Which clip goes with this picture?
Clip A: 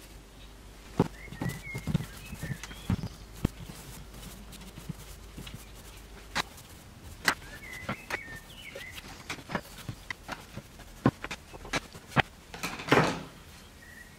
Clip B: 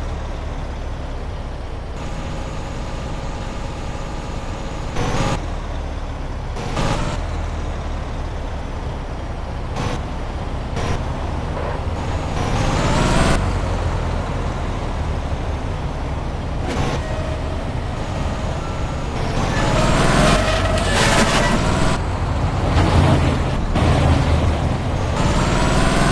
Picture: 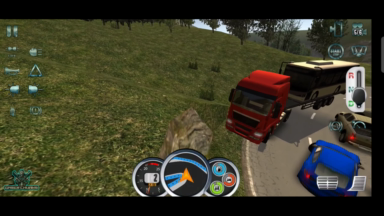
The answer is B